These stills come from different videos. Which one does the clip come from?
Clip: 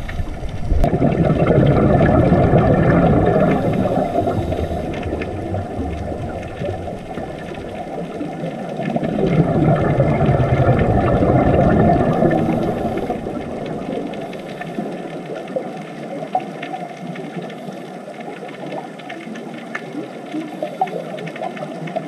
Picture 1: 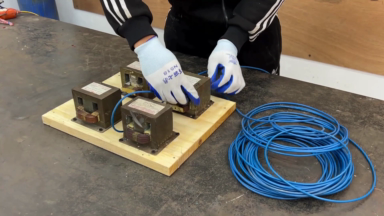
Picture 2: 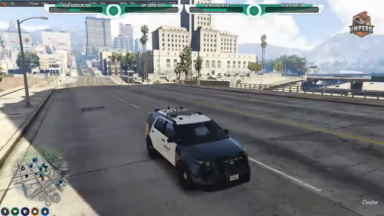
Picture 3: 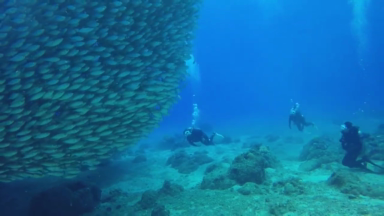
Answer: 3